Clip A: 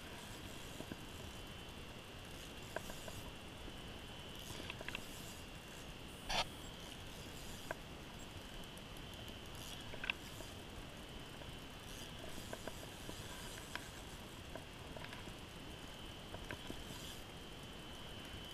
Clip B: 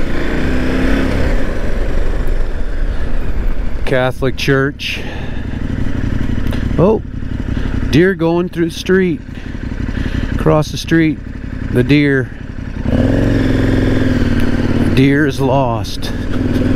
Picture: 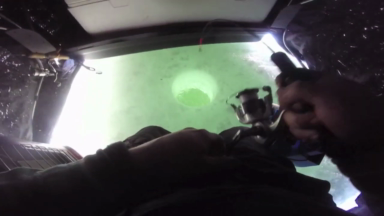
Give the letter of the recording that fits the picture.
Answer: A